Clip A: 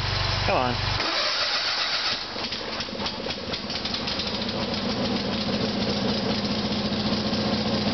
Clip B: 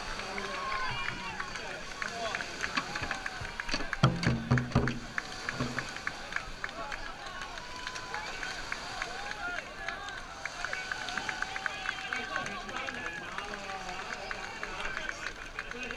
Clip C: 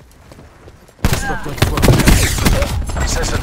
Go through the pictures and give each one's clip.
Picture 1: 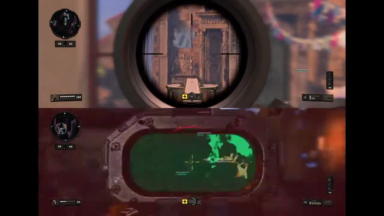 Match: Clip C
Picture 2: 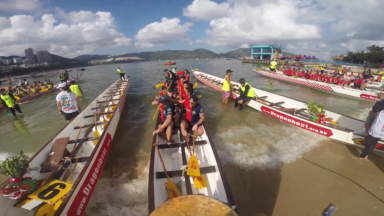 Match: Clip B